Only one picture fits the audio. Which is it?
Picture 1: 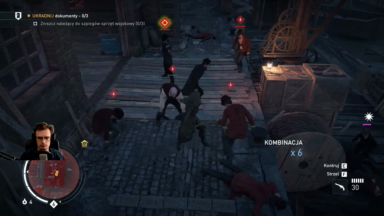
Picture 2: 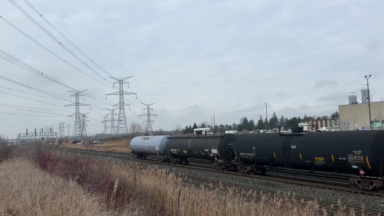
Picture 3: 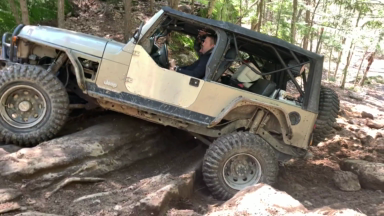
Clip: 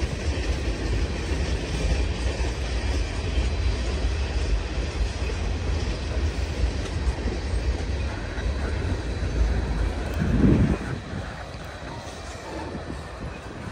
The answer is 2